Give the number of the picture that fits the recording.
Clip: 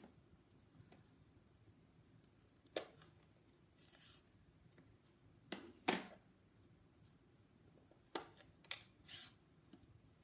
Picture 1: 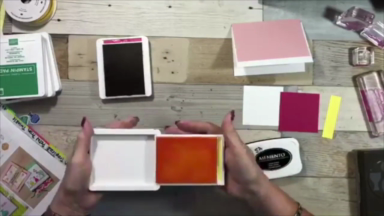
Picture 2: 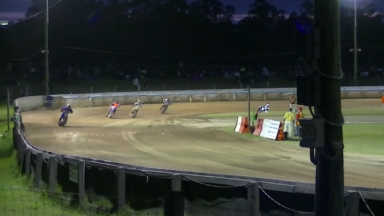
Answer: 1